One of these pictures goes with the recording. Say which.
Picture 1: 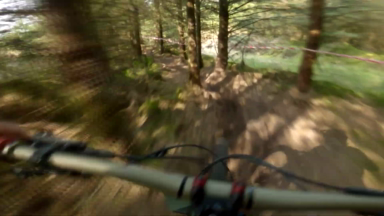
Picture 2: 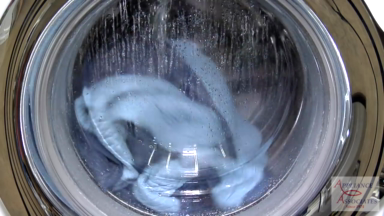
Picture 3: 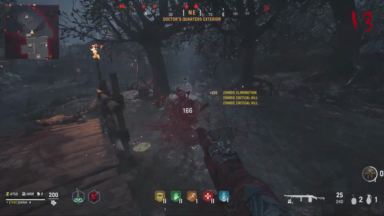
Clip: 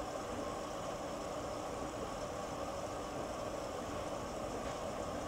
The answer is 2